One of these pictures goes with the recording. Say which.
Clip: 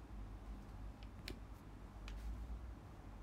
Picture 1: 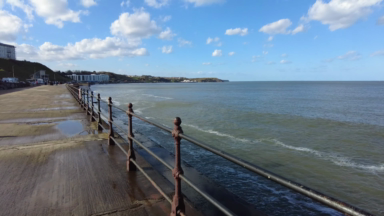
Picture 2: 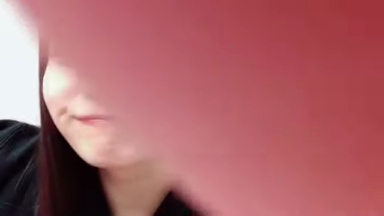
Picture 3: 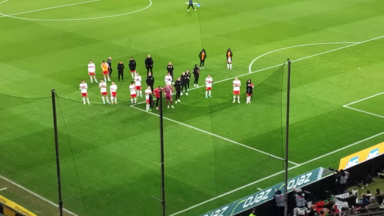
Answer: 2